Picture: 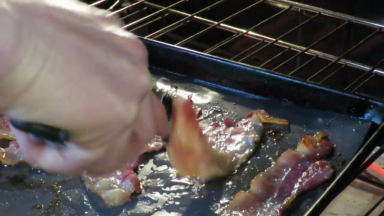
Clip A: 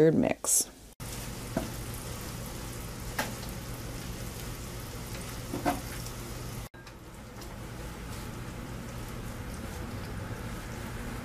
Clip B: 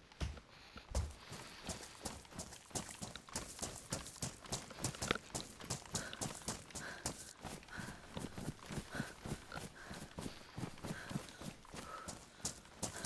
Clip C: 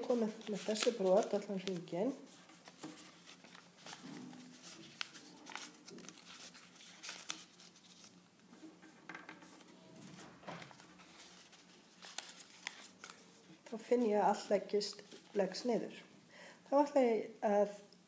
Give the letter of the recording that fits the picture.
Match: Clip A